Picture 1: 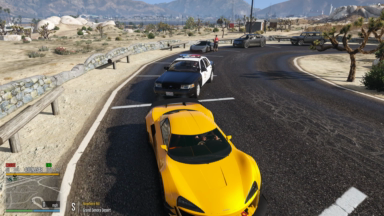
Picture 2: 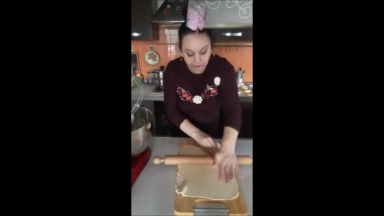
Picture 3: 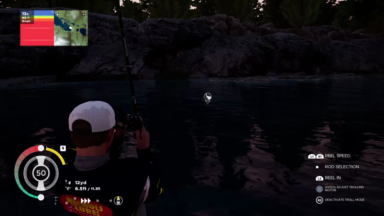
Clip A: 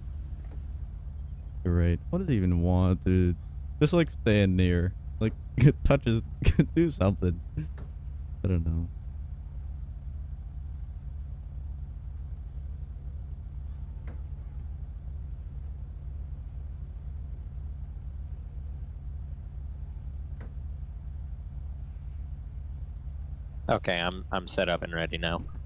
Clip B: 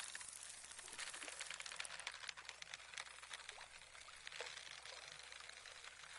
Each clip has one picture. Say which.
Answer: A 1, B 3